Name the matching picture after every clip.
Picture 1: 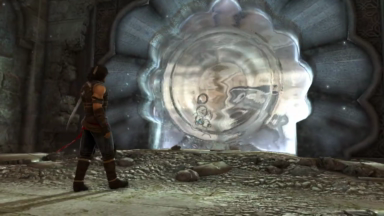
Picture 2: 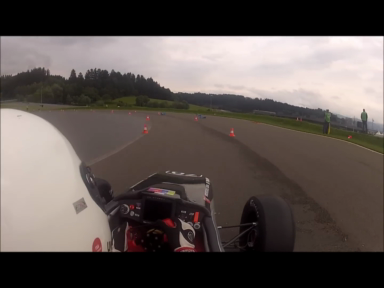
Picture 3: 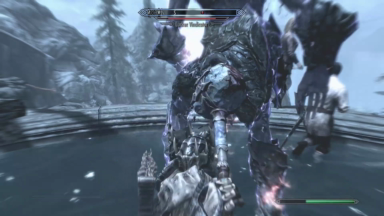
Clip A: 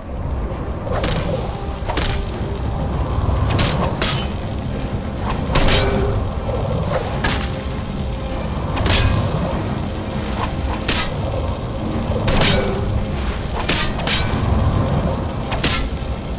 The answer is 3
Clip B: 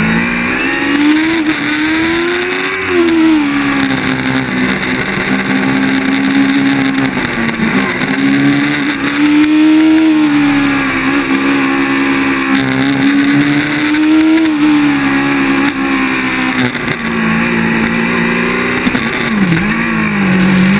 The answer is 2